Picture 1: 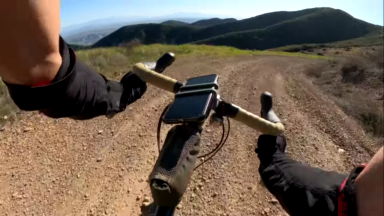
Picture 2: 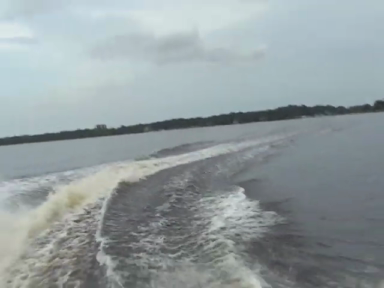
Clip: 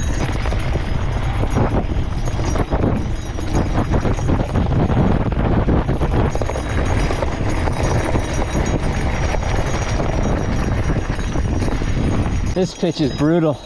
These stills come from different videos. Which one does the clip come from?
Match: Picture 1